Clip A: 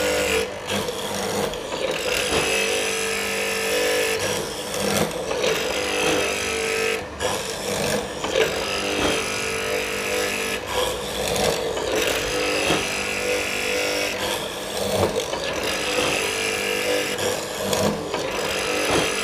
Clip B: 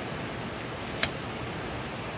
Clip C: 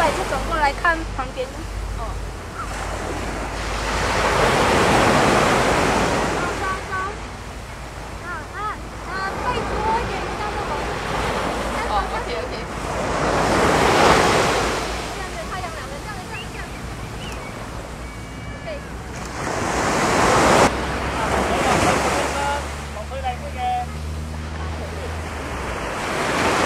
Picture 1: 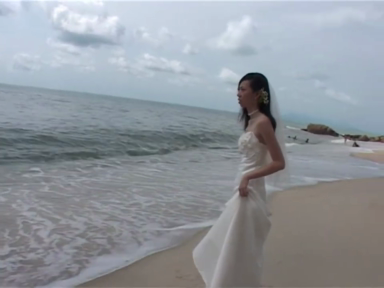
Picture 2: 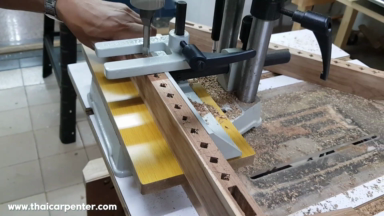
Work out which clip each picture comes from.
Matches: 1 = C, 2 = A